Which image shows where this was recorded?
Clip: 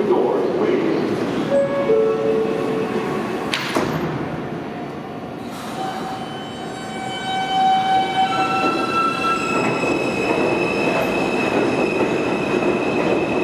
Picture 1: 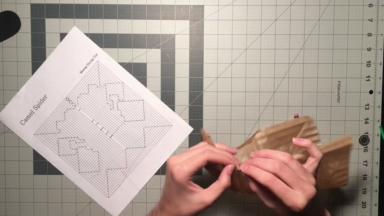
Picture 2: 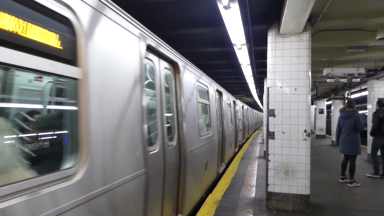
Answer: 2